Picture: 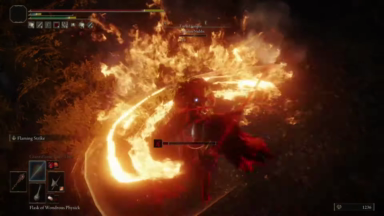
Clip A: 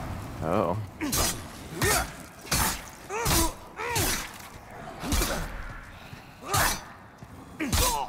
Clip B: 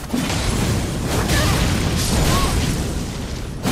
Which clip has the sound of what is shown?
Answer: B